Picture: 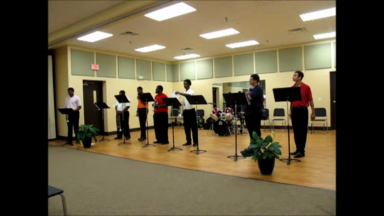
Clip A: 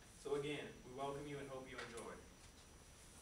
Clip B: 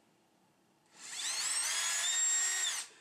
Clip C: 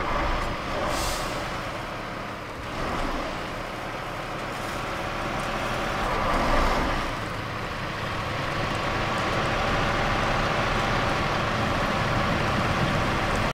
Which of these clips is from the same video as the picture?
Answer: A